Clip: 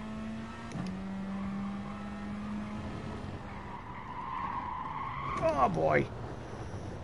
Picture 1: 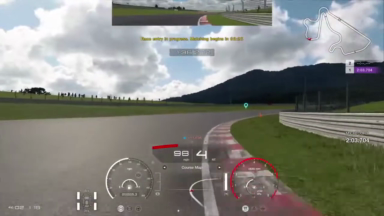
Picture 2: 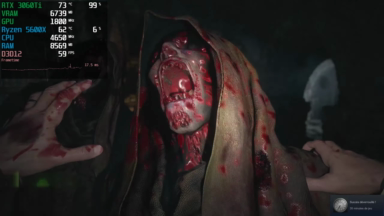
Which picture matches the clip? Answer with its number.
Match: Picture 1